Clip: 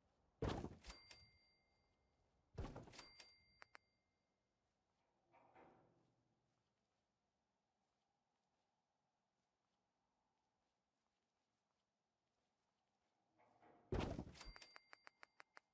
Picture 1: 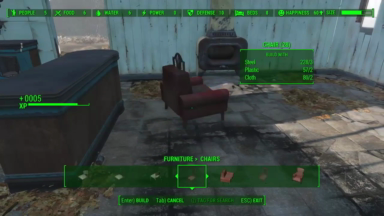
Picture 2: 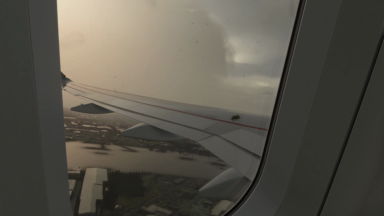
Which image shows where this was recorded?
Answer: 1